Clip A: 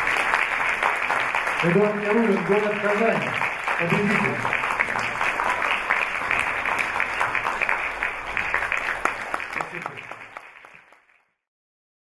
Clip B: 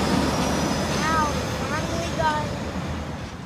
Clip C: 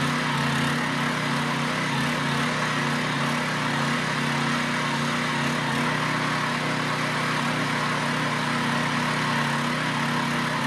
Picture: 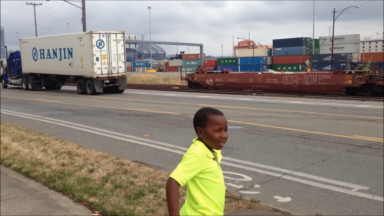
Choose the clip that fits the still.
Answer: B